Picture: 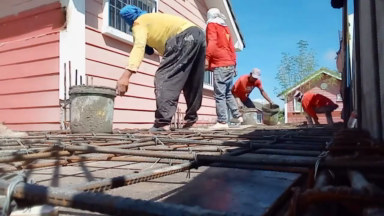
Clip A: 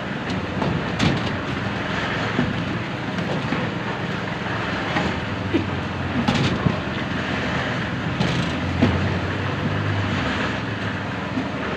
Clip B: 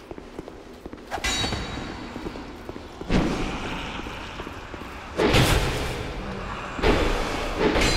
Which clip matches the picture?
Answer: A